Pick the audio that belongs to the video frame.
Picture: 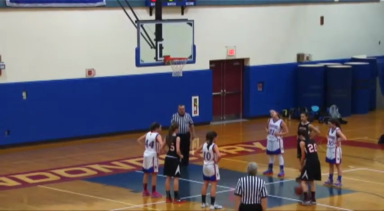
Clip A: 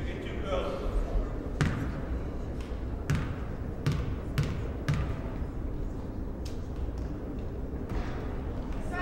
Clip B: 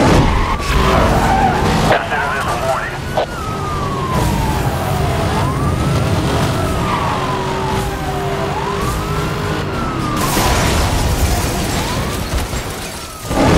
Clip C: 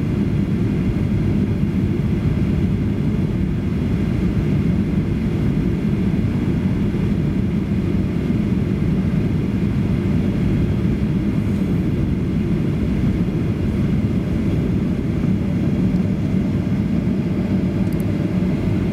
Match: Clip A